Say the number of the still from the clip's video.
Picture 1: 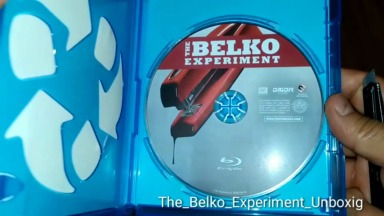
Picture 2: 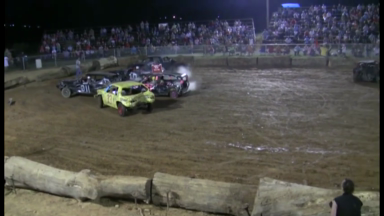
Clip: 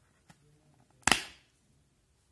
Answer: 1